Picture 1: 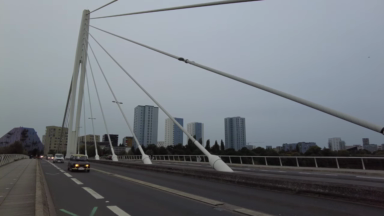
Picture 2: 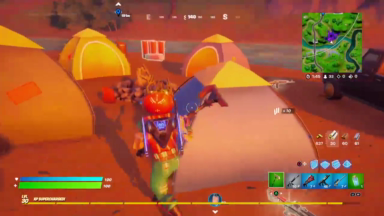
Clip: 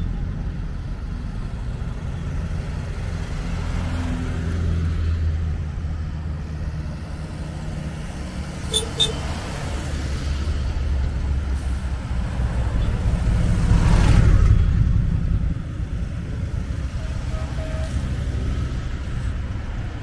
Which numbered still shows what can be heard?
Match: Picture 1